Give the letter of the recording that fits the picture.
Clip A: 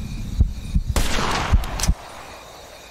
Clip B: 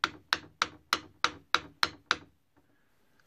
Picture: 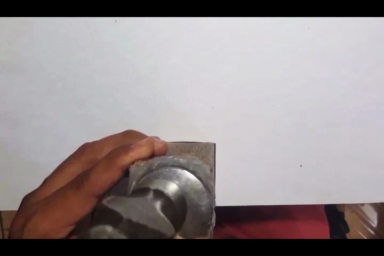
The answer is B